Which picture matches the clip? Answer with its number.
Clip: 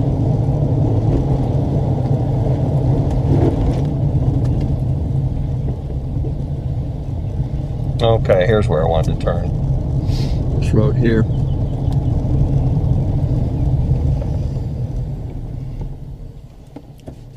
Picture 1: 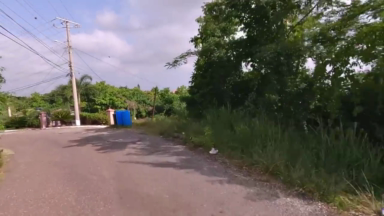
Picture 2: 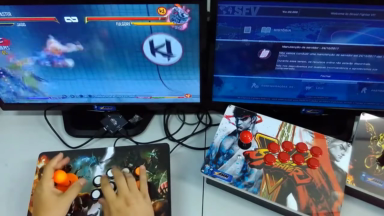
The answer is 1